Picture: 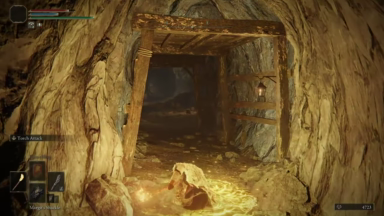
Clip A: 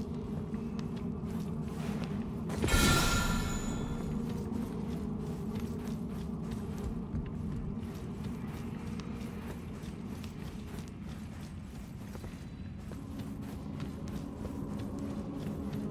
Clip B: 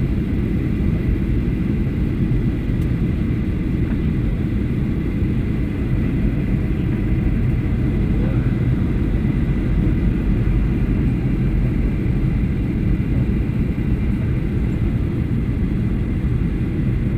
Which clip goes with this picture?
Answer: A